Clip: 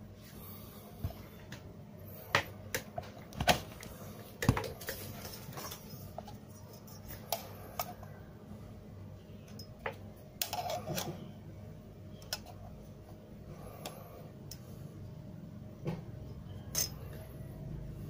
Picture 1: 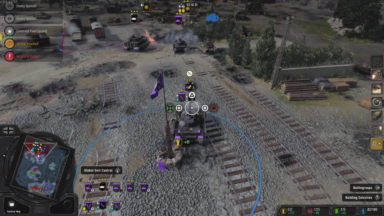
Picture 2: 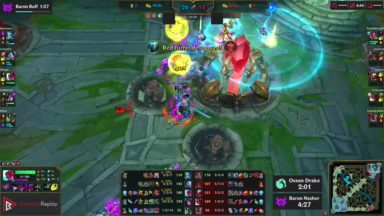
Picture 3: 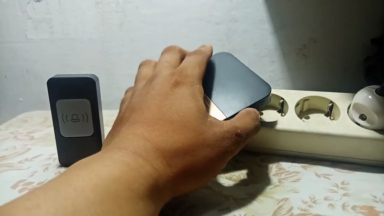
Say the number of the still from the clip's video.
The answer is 3